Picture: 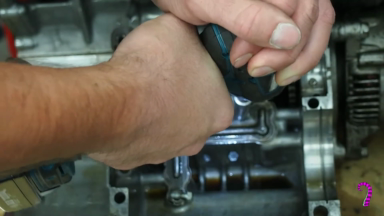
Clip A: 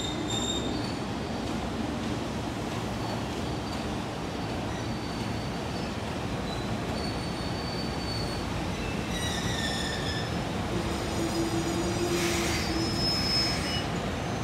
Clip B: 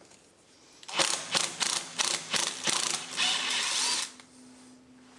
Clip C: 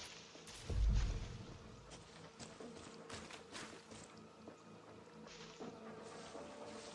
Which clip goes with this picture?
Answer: B